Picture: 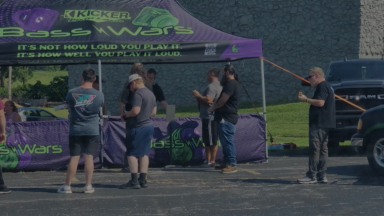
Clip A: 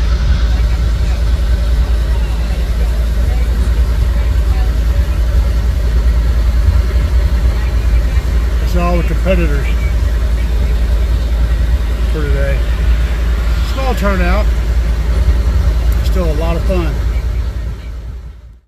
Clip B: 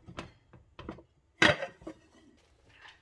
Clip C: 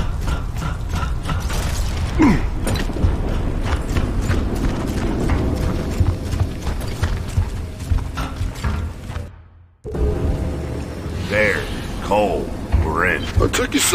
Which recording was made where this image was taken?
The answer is A